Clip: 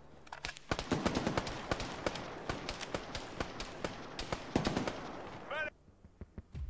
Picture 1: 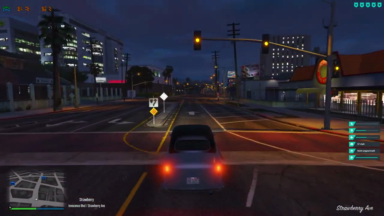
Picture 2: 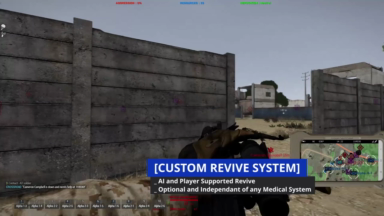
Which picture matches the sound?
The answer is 2